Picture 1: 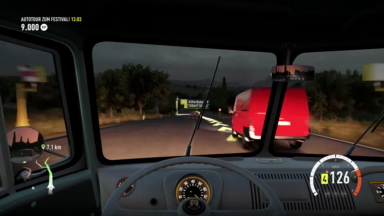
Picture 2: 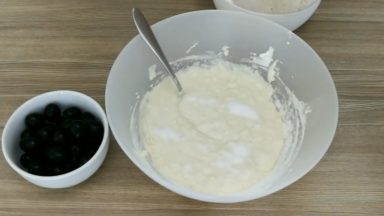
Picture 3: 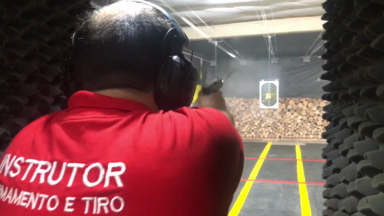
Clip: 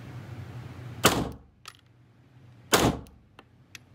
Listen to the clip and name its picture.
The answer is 3